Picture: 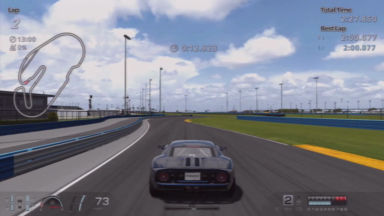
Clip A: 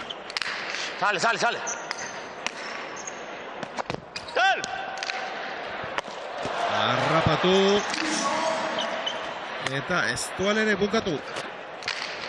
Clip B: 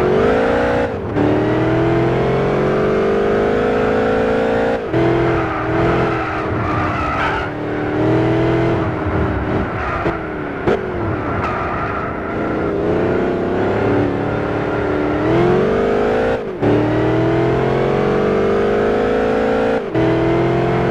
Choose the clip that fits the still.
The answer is B